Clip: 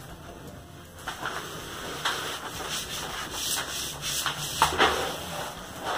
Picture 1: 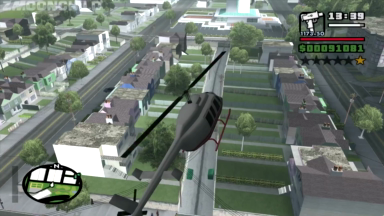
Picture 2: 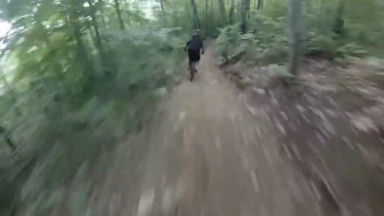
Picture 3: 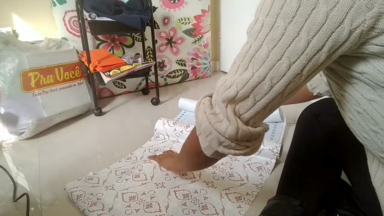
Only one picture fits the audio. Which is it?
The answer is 3